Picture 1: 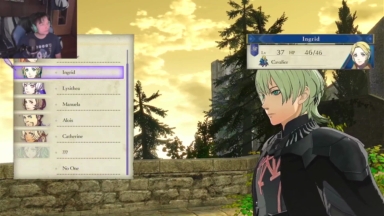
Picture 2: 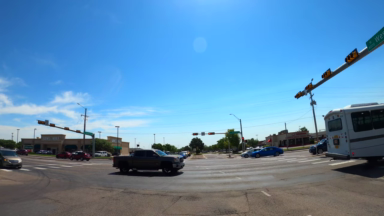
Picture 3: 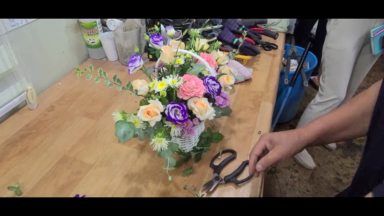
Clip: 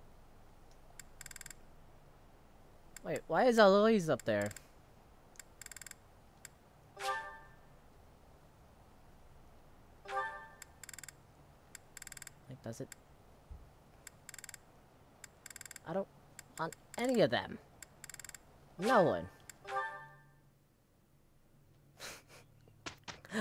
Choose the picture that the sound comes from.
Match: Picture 1